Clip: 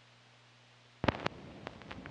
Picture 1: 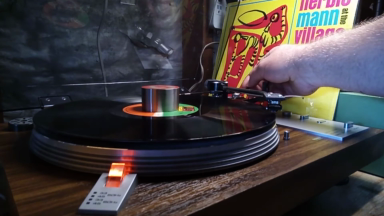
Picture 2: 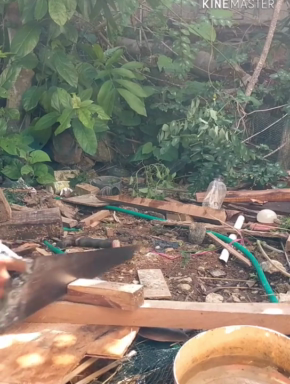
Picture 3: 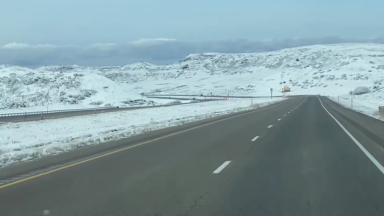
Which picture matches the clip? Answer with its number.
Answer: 1